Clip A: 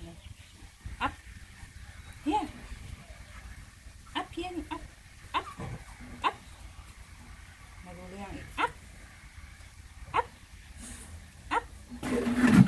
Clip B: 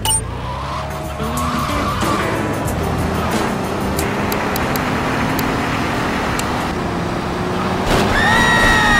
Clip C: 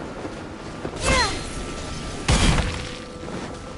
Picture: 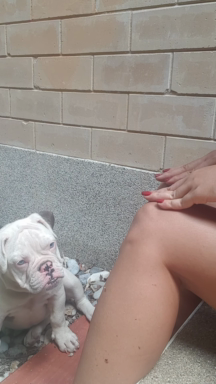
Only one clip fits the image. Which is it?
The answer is A